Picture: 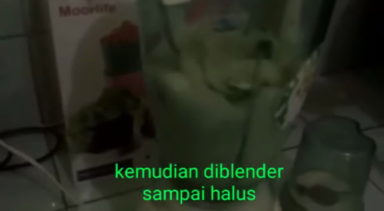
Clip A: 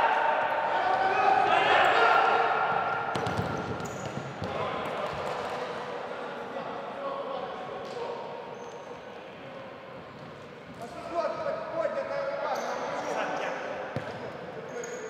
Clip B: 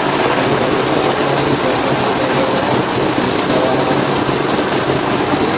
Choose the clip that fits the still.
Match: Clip B